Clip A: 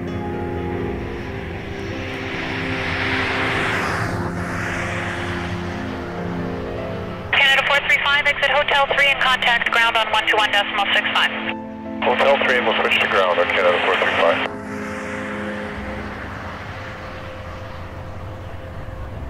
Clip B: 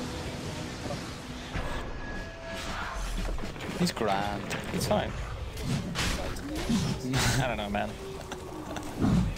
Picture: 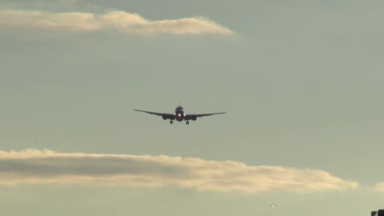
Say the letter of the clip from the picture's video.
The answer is A